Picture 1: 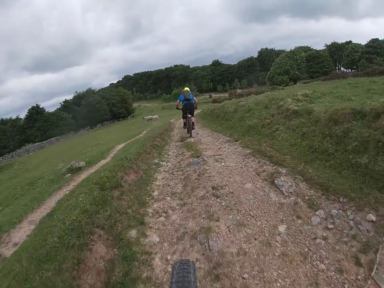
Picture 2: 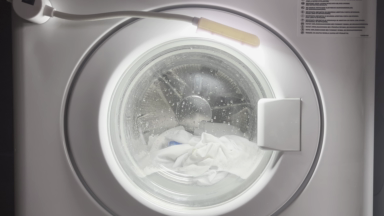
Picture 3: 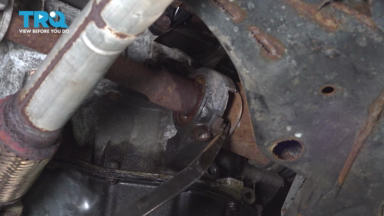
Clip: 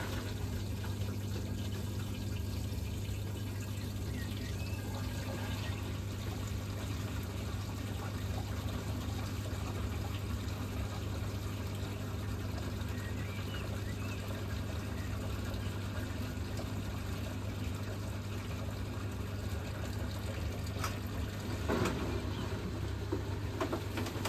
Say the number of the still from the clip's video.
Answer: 2